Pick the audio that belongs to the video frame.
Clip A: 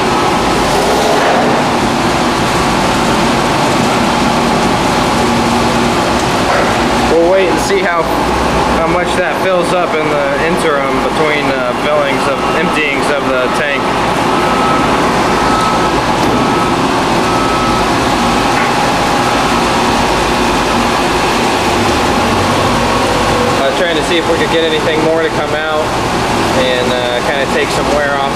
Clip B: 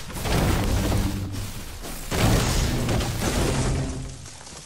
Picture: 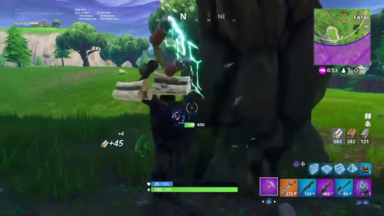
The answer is B